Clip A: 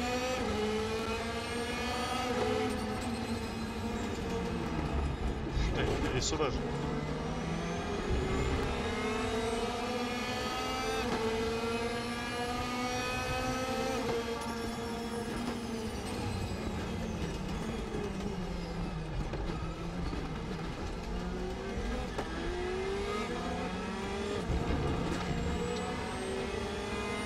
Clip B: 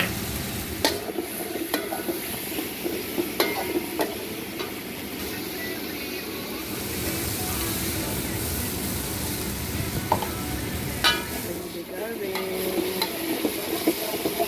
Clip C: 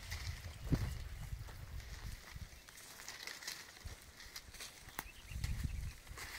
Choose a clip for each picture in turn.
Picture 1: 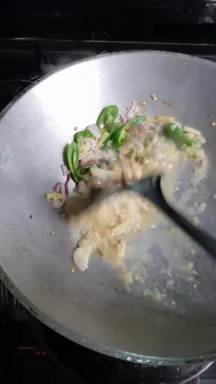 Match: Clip B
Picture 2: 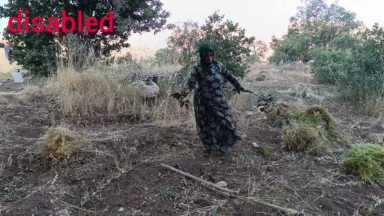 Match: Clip C